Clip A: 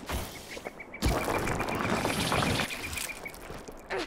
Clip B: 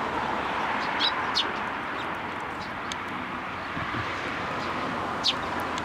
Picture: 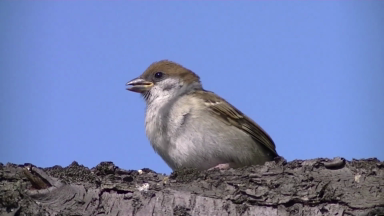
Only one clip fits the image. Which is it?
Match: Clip B